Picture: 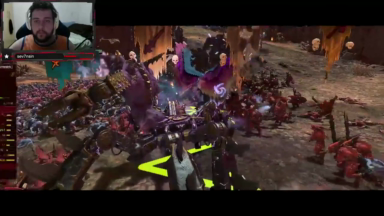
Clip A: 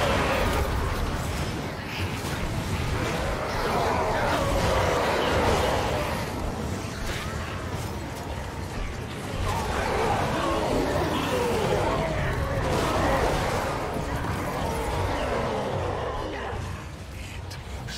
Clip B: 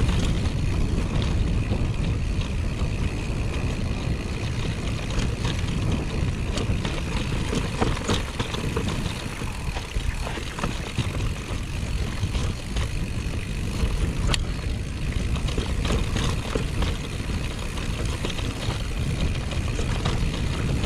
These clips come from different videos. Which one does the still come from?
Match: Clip A